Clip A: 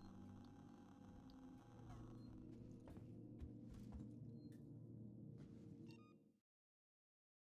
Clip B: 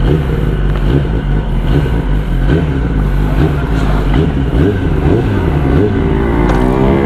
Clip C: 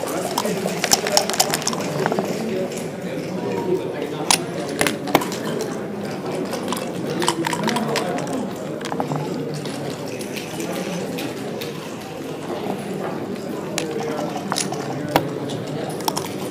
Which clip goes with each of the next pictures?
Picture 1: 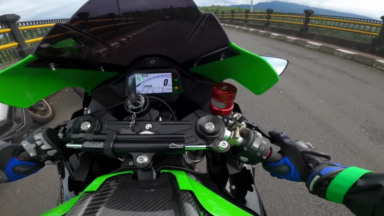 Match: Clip B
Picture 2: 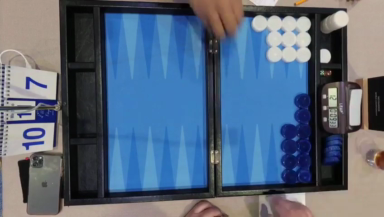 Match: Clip C